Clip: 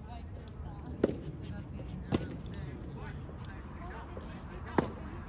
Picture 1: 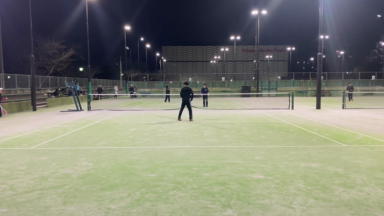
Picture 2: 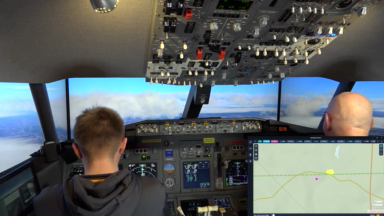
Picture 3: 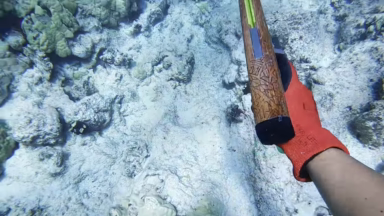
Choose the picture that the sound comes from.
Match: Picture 1